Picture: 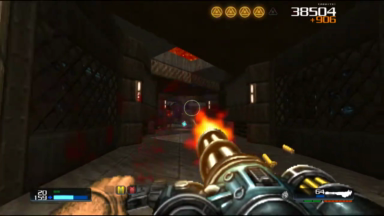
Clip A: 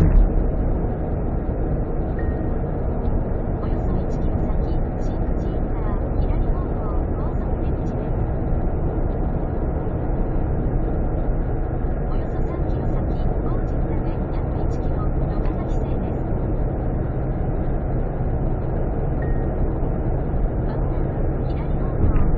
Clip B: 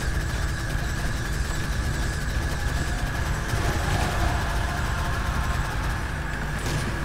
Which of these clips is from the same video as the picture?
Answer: B